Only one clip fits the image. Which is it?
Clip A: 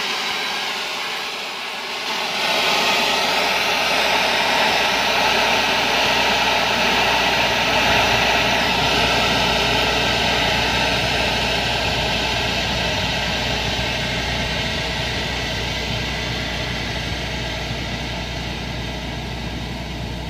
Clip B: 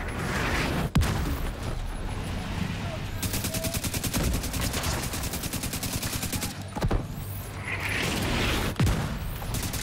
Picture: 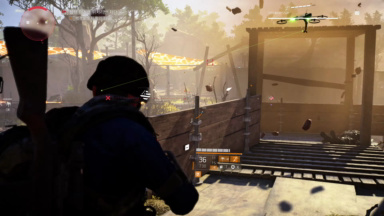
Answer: B